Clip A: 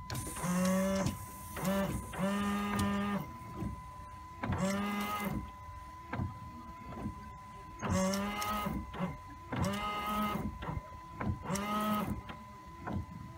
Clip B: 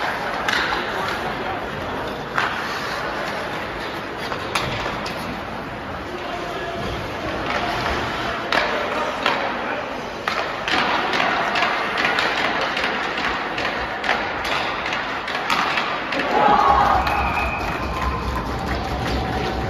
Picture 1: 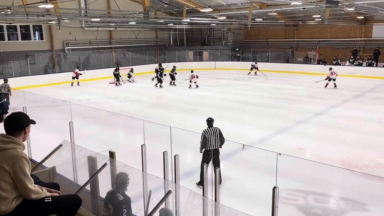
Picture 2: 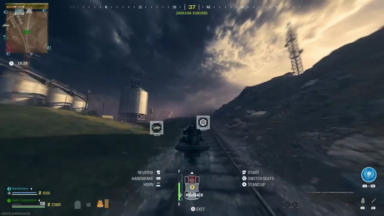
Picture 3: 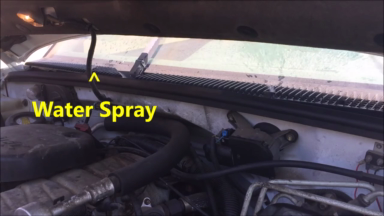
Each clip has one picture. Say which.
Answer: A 3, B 1